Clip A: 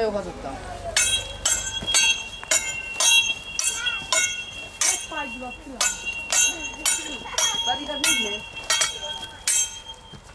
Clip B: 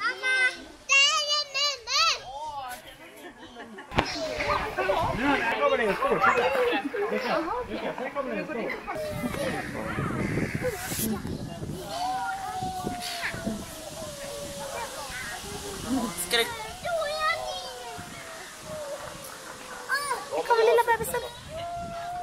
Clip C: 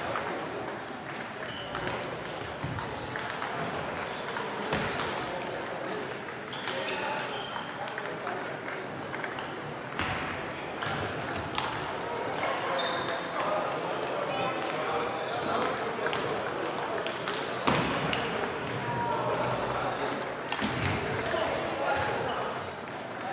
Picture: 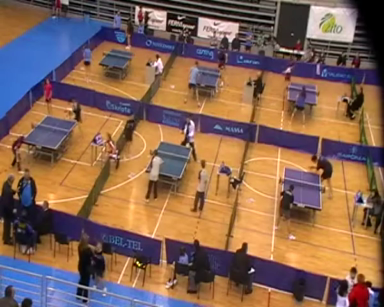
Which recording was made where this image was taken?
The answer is C